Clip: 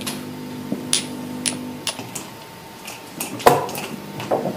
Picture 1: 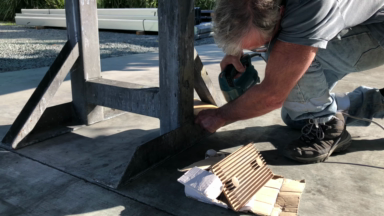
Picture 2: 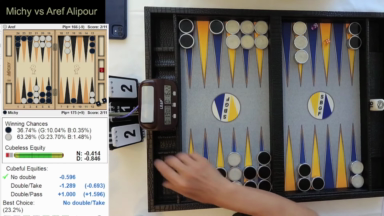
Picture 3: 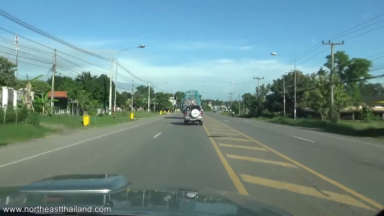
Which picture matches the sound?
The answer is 2